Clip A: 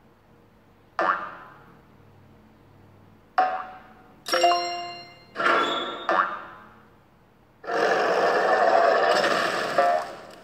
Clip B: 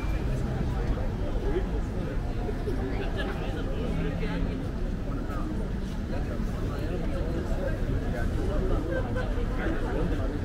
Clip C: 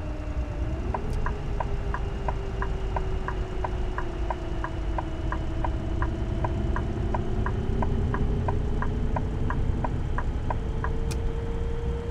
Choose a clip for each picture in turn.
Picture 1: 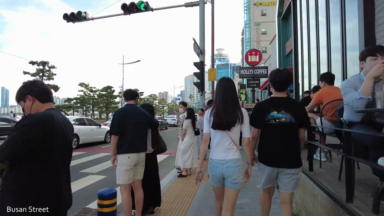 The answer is B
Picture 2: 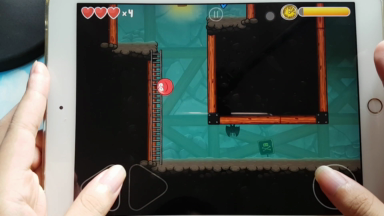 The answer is A